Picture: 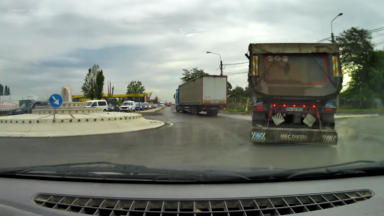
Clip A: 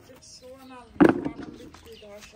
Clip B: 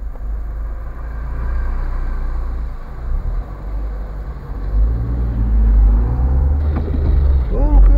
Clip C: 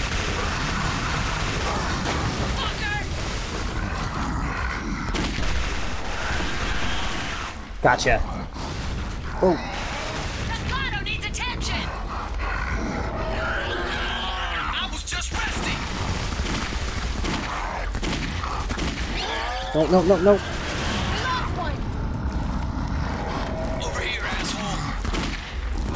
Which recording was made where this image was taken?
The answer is B